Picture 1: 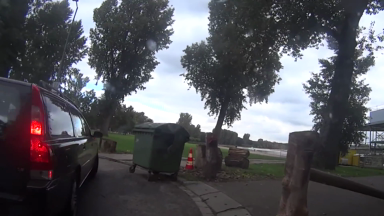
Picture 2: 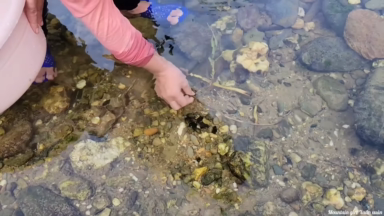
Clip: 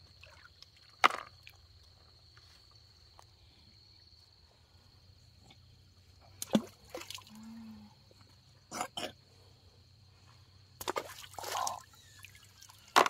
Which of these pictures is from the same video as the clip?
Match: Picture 2